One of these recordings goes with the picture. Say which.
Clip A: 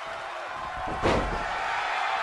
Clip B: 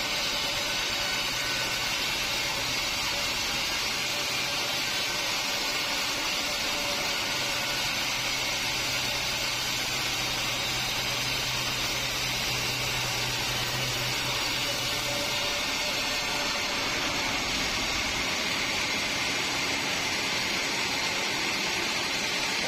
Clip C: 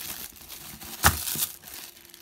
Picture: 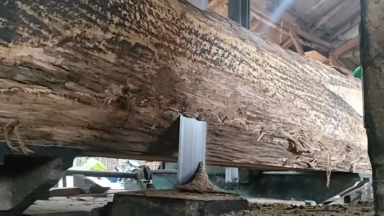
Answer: B